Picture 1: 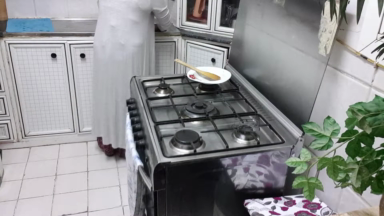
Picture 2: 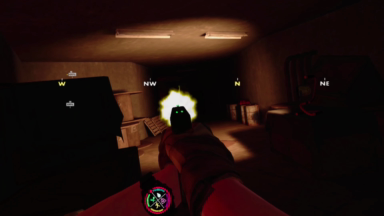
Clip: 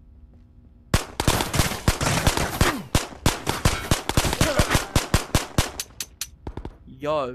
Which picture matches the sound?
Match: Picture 2